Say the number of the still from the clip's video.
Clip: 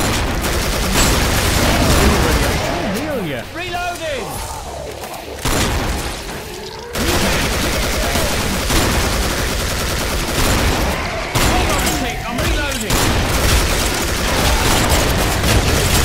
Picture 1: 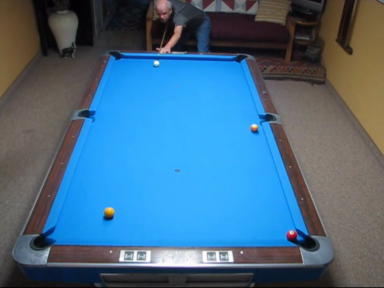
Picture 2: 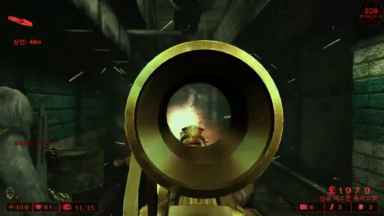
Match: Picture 2